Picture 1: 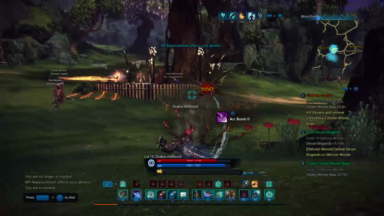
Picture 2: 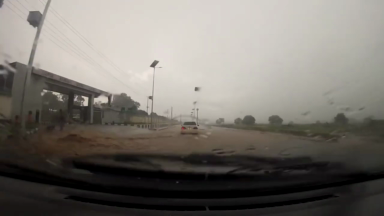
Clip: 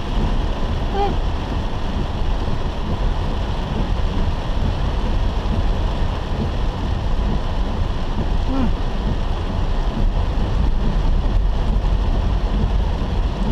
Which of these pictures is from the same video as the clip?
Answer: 2